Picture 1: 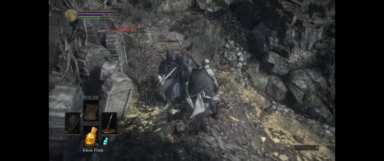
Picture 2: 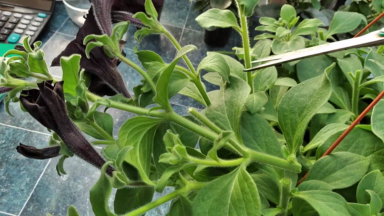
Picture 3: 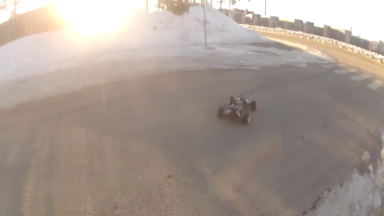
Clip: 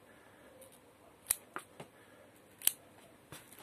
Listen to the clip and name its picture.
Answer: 2